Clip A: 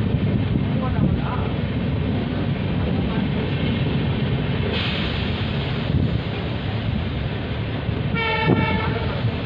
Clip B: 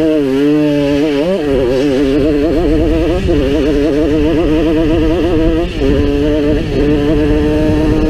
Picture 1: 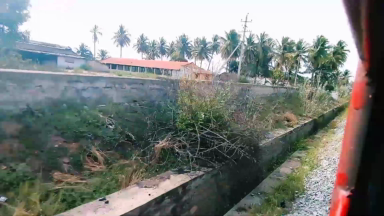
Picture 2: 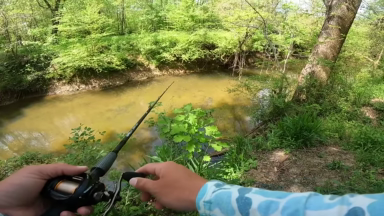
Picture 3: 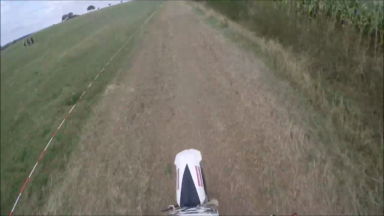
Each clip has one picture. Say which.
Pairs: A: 1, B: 3